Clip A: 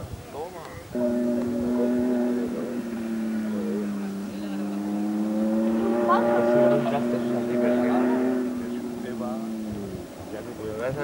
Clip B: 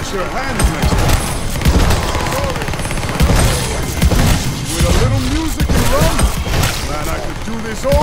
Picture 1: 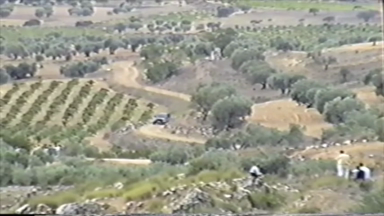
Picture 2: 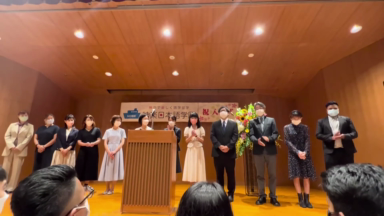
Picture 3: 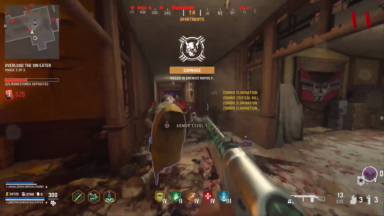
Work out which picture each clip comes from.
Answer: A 1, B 3